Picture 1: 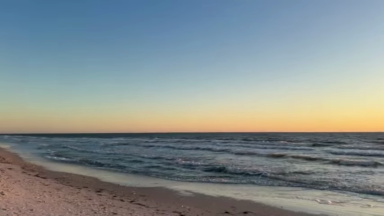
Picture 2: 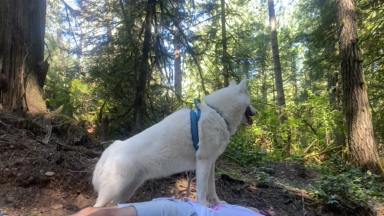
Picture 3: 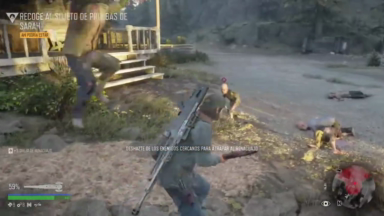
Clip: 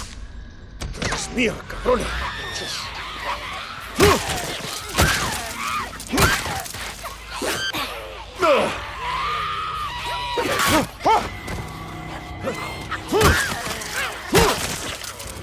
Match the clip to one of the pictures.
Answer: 3